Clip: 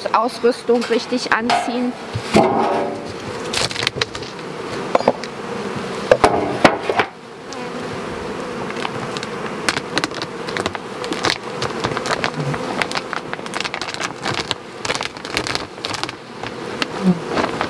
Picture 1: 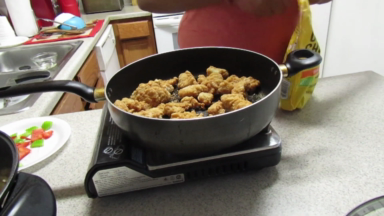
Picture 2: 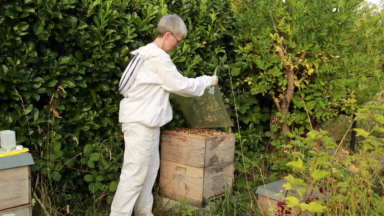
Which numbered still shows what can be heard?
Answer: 2